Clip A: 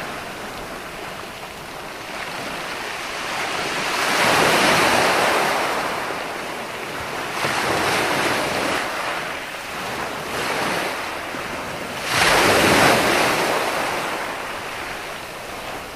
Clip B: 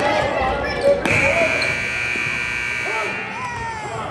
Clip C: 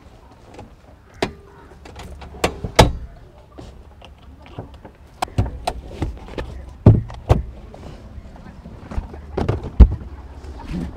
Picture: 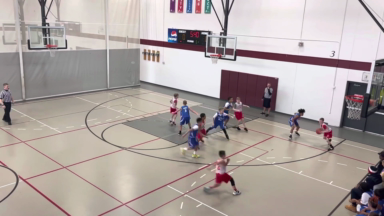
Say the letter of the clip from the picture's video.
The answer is B